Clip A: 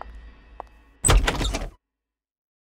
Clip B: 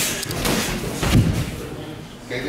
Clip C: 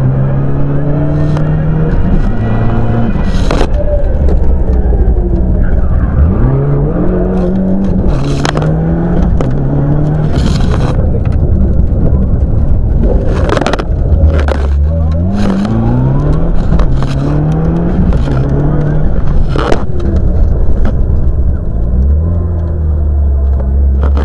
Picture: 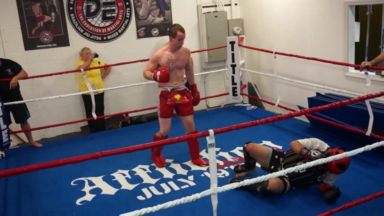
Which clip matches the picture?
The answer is B